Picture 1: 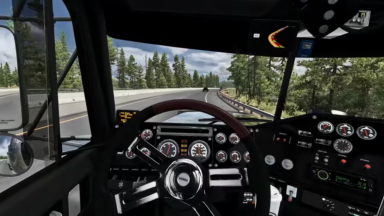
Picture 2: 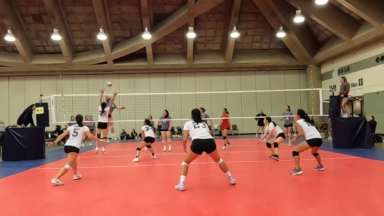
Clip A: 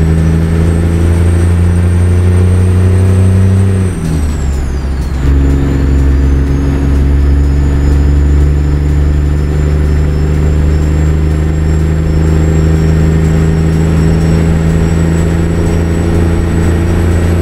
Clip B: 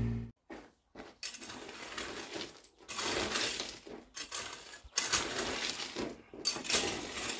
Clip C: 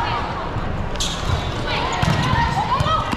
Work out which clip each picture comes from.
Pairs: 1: A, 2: C